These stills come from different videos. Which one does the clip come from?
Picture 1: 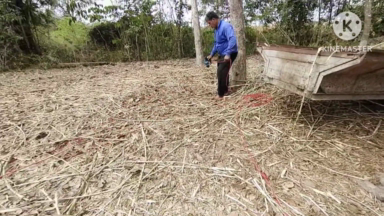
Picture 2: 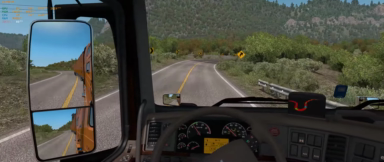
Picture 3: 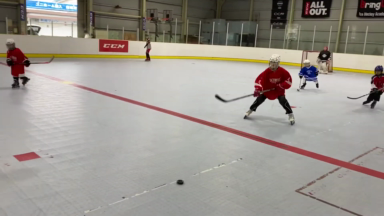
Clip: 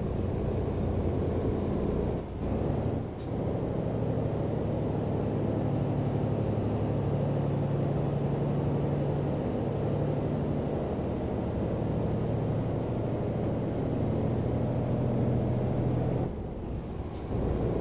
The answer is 2